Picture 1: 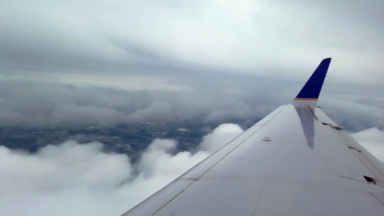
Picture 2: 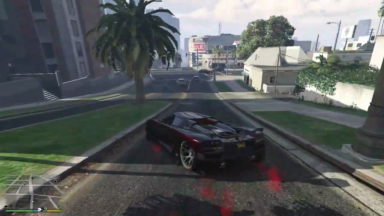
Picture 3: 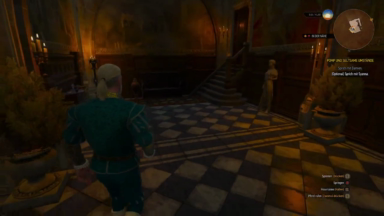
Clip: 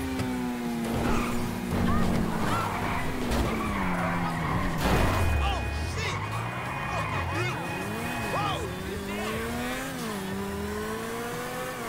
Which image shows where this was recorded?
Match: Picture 2